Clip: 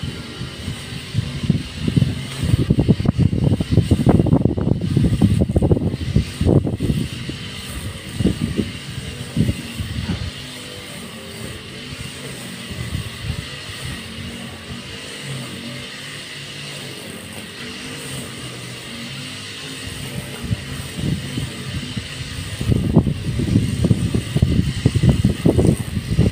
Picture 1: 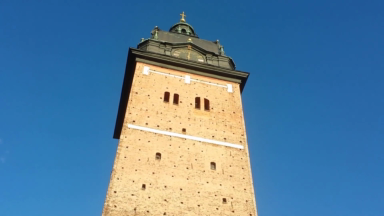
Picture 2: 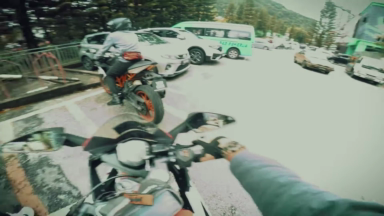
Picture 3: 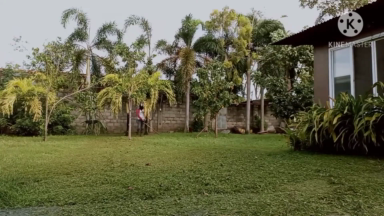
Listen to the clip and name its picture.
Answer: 3